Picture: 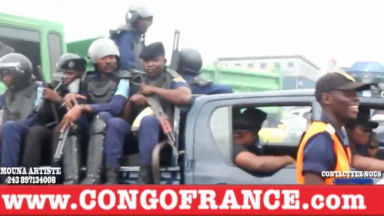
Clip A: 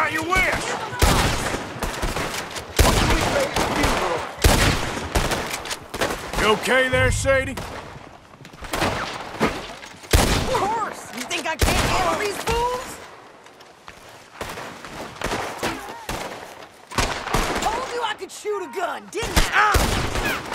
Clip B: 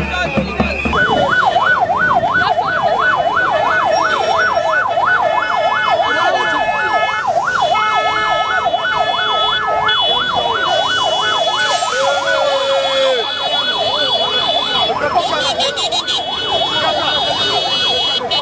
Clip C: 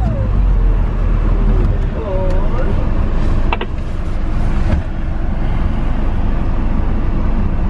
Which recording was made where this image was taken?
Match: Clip B